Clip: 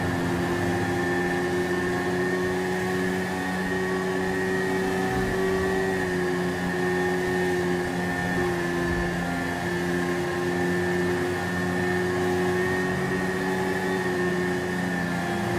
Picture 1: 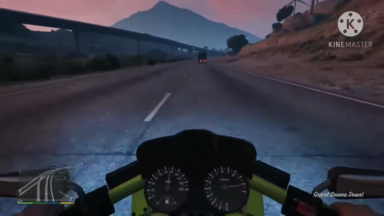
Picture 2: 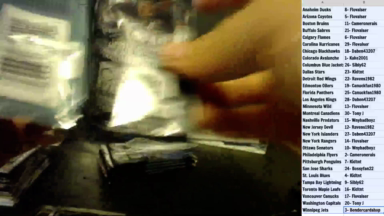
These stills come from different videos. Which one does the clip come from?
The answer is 1